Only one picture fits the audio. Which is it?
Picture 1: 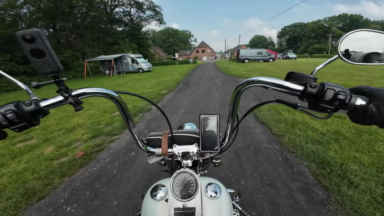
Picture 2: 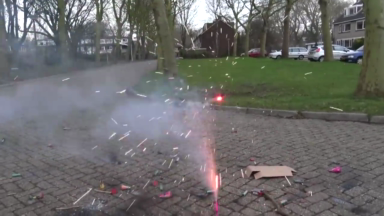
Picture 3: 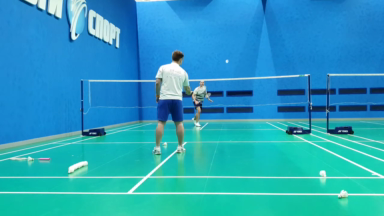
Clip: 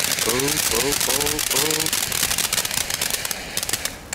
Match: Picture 2